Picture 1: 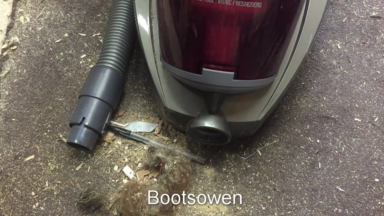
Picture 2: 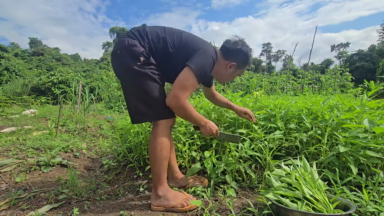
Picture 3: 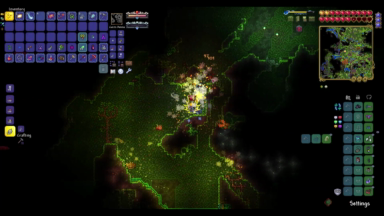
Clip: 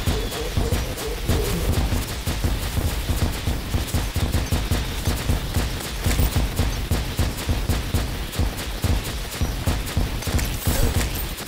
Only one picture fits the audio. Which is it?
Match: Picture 3